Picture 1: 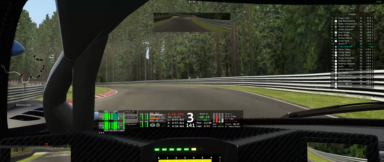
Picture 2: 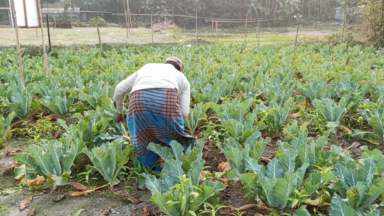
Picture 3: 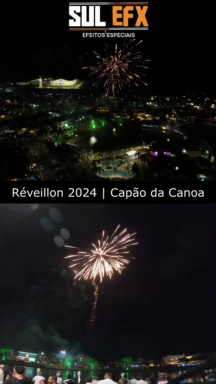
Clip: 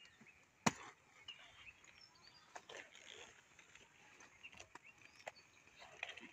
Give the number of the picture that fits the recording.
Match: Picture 2